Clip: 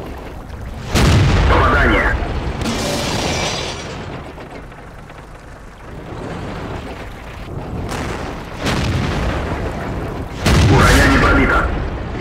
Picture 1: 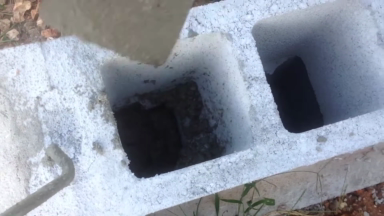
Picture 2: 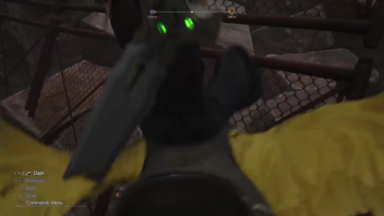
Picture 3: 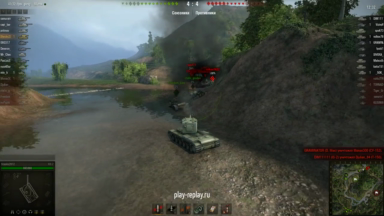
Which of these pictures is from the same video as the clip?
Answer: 3